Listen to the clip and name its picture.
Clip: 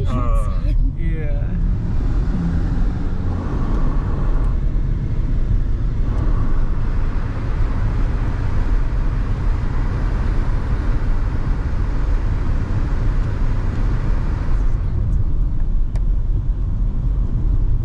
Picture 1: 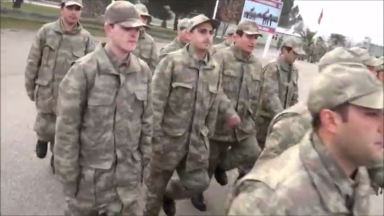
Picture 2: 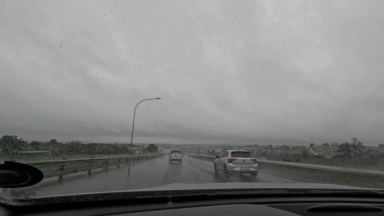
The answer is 2